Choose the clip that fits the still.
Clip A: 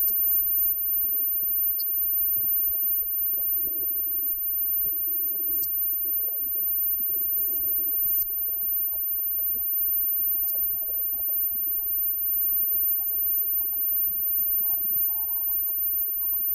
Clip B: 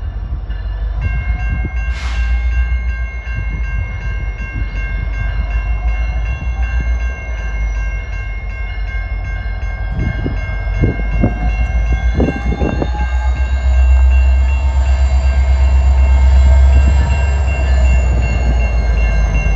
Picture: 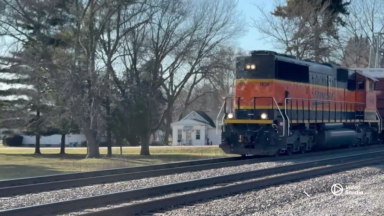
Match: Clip B